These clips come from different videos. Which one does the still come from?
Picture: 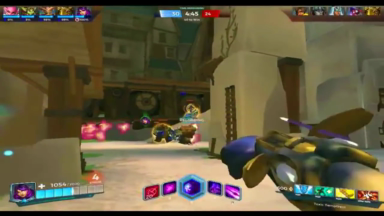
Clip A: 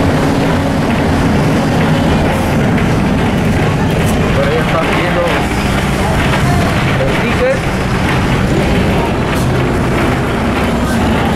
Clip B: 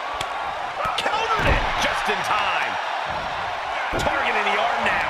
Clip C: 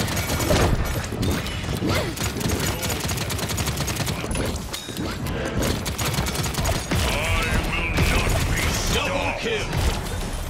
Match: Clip C